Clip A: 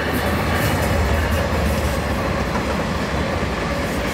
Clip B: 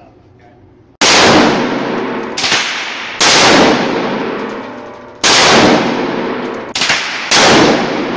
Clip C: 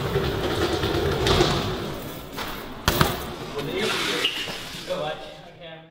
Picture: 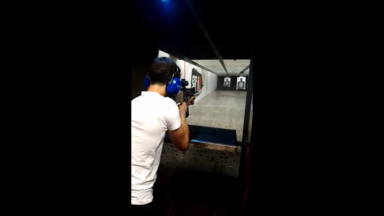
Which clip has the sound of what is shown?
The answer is B